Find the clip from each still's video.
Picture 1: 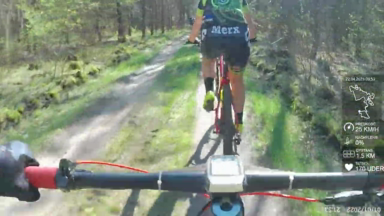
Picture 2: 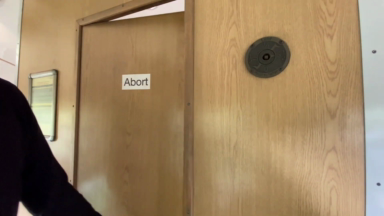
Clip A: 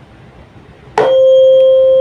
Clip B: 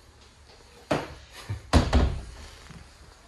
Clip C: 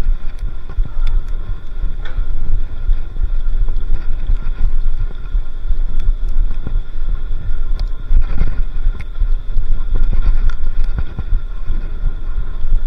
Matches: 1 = C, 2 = B